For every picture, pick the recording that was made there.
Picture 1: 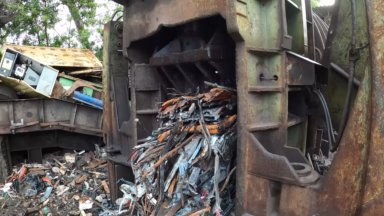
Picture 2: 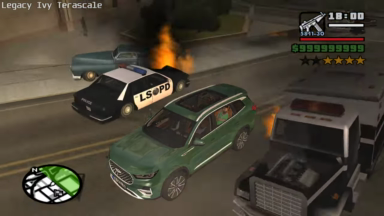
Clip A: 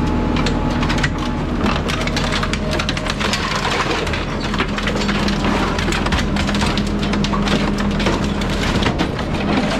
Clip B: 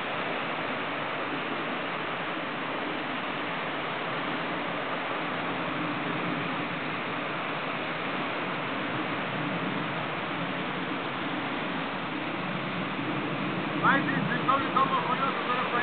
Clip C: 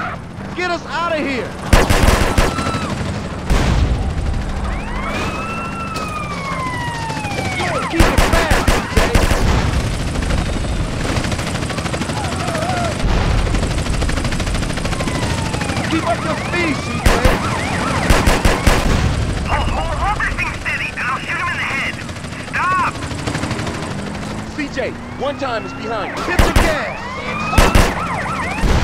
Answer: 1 A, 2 C